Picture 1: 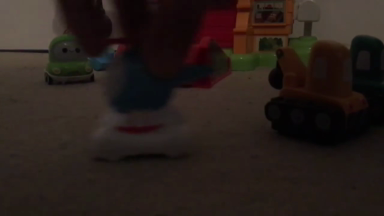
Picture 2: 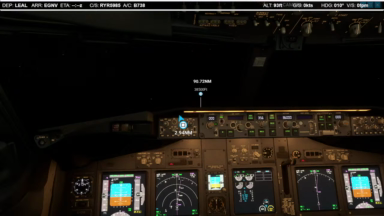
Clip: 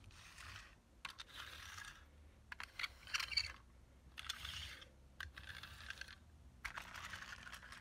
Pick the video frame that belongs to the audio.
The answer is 1